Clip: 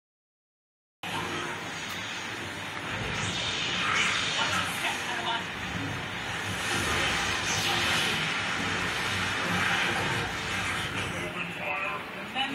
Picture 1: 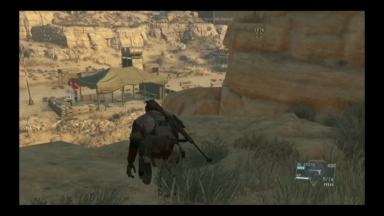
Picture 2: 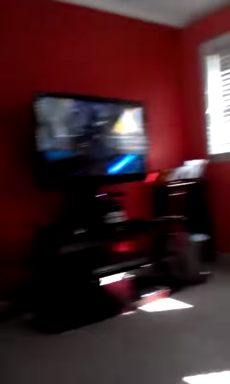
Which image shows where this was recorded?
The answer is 2